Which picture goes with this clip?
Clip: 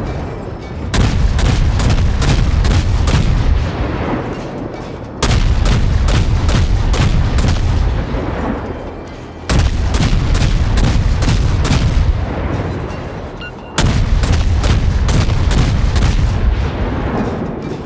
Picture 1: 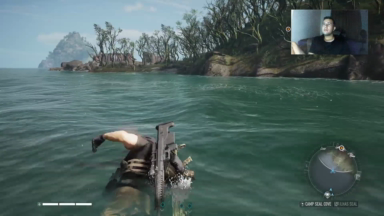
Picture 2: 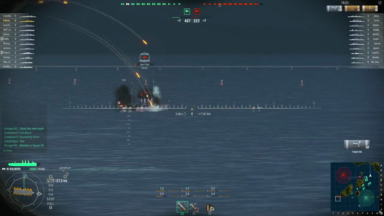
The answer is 2